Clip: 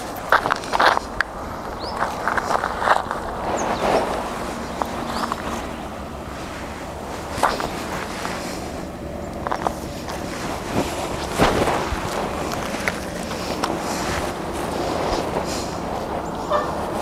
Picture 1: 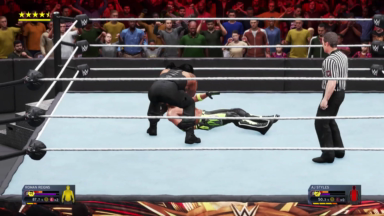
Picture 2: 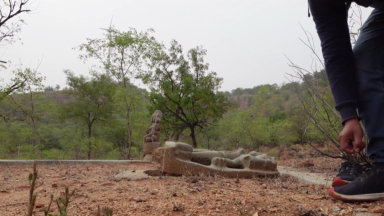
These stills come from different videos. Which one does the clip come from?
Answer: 2